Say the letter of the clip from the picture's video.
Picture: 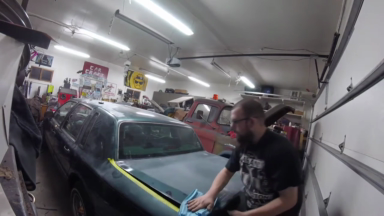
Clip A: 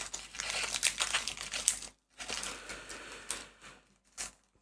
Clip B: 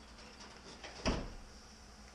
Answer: B